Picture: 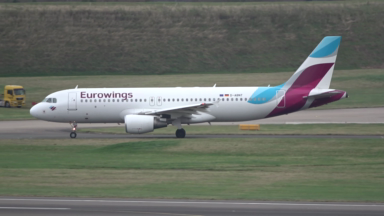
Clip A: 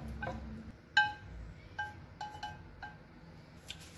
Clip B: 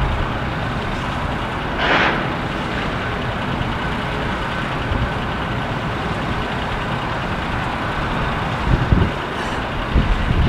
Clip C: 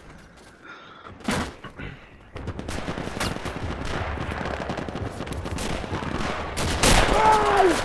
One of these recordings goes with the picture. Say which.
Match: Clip B